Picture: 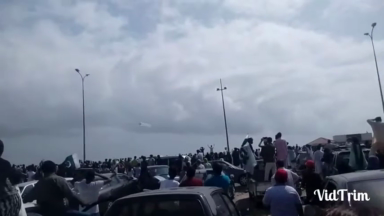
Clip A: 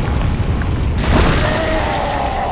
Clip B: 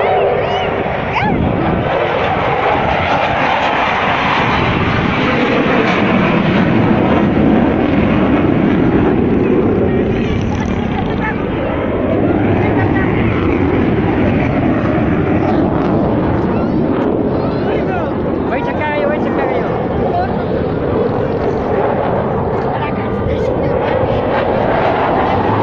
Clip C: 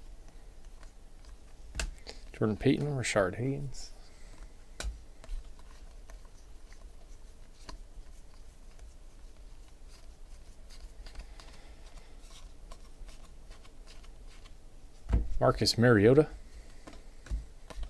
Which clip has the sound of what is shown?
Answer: B